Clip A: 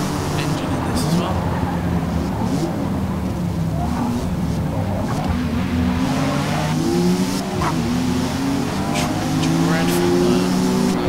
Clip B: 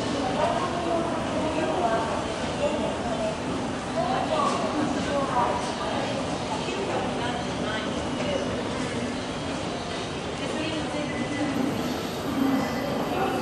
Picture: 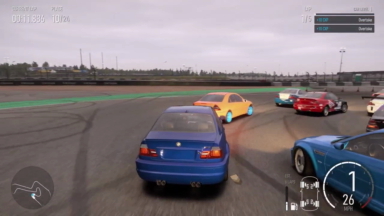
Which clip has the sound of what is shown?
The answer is A